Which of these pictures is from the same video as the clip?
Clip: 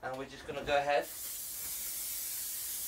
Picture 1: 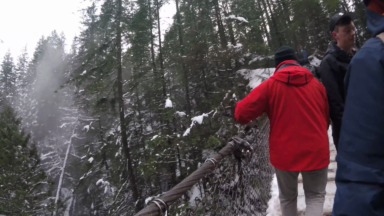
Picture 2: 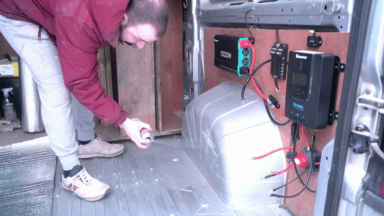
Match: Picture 2